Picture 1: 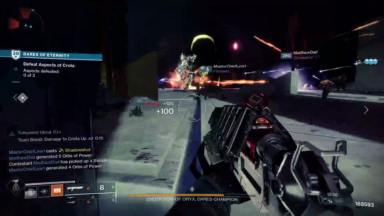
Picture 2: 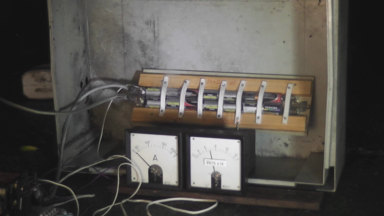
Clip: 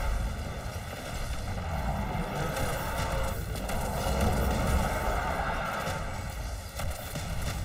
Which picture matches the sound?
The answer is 1